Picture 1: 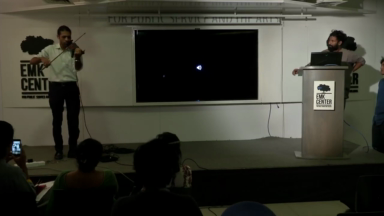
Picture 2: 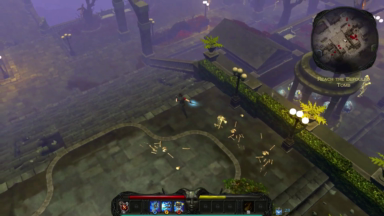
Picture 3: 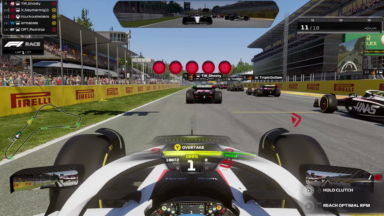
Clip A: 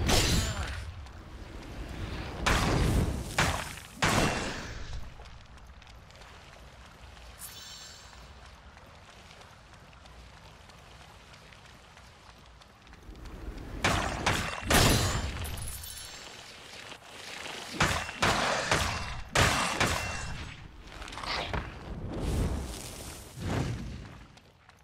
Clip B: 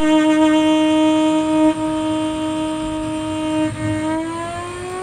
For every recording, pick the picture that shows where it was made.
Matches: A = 2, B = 1